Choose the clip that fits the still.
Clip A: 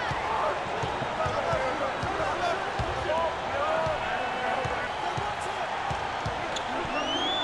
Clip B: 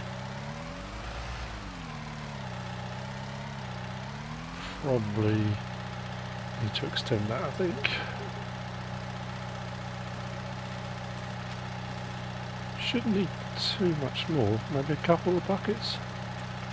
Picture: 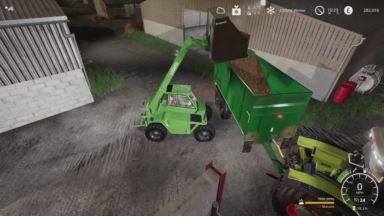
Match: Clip B